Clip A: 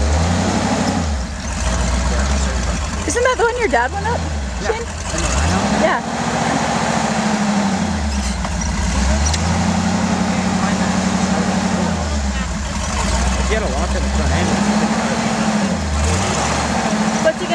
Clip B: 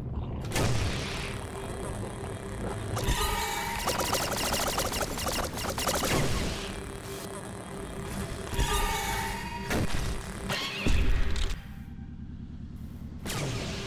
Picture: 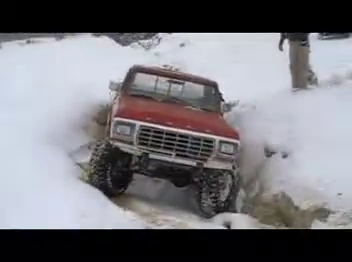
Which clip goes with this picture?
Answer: A